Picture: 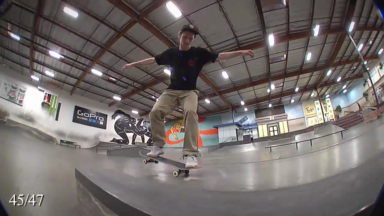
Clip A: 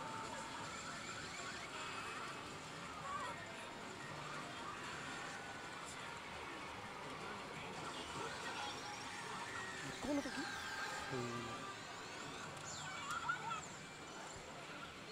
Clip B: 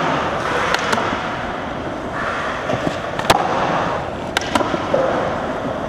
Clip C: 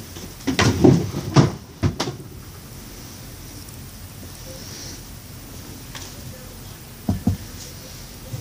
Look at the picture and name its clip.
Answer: B